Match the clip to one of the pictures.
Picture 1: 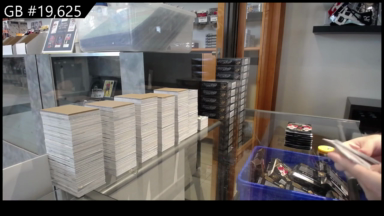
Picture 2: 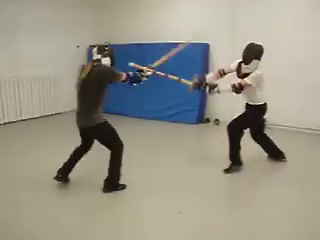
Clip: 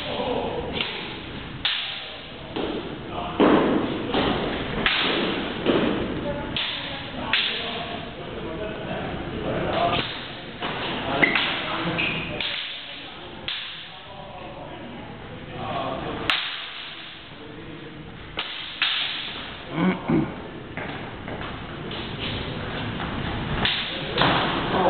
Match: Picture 2